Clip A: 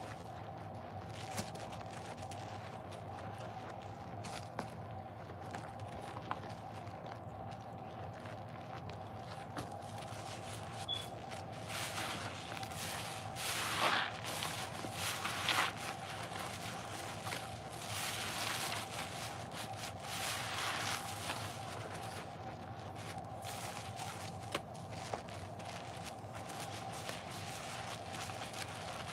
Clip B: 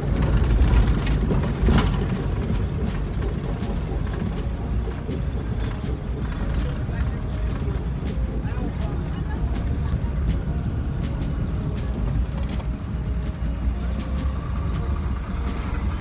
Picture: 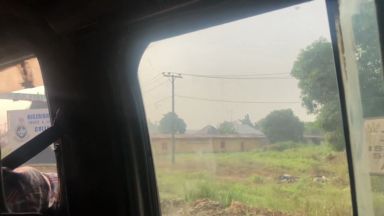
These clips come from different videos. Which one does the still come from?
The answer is B